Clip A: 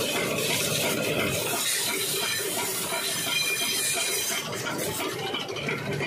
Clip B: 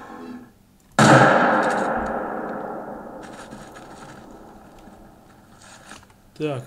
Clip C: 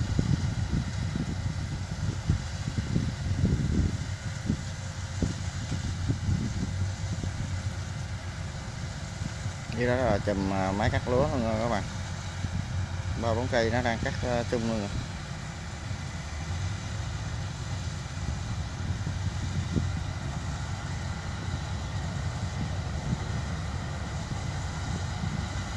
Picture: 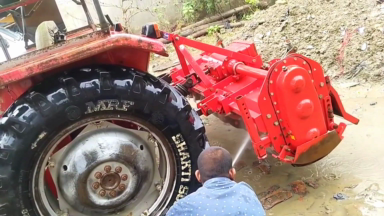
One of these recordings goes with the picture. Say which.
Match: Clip A